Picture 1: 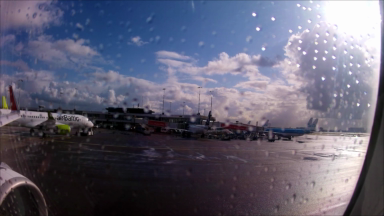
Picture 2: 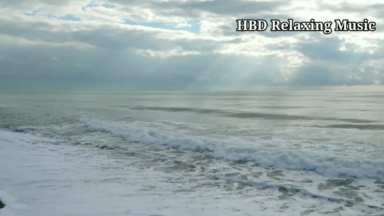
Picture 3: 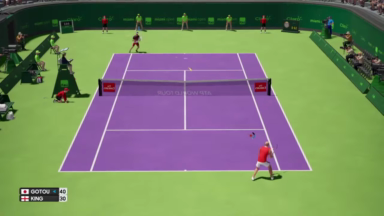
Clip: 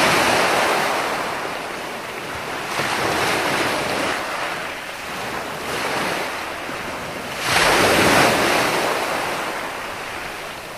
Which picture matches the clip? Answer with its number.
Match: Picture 2